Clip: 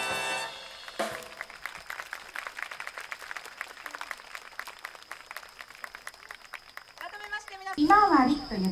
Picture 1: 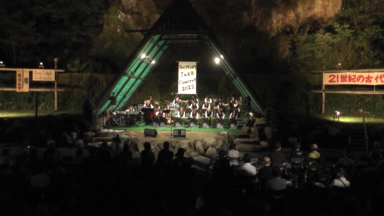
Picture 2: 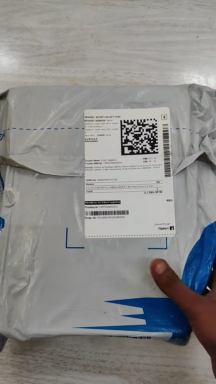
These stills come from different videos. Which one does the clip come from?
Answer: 1